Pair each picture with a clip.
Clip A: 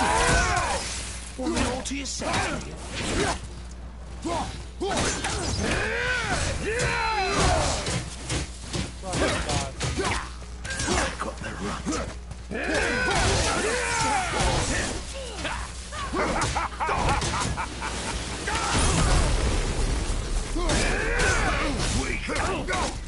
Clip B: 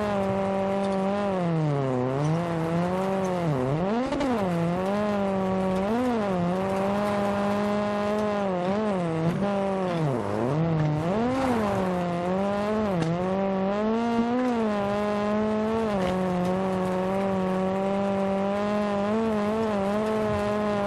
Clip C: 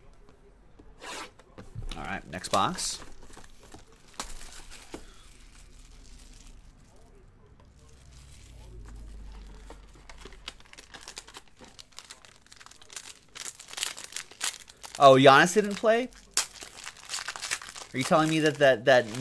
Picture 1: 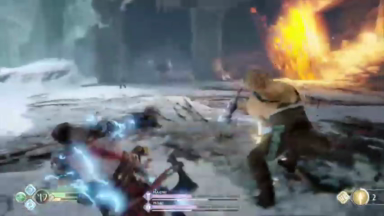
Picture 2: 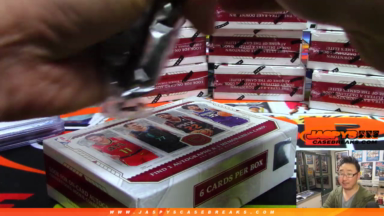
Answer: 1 A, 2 C